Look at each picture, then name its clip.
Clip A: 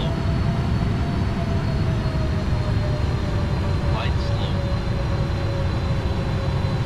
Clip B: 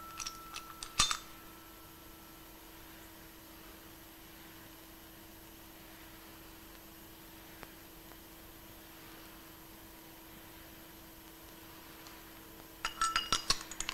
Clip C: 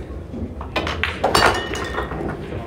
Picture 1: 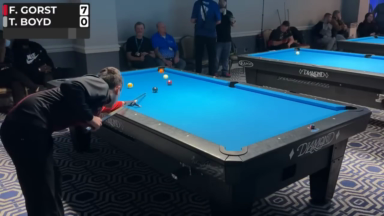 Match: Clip C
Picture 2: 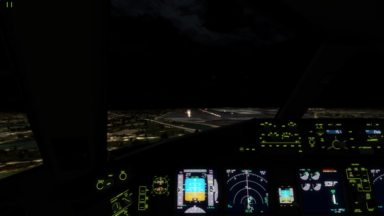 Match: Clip A